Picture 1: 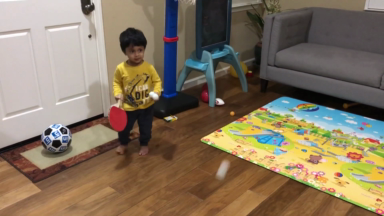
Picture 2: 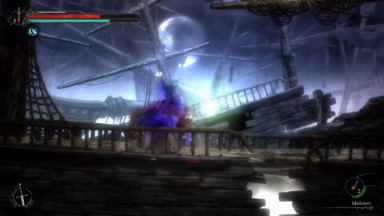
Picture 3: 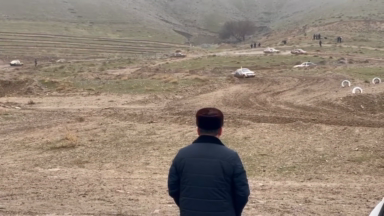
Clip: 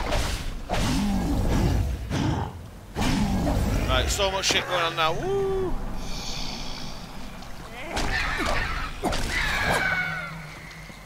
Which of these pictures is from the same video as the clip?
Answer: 2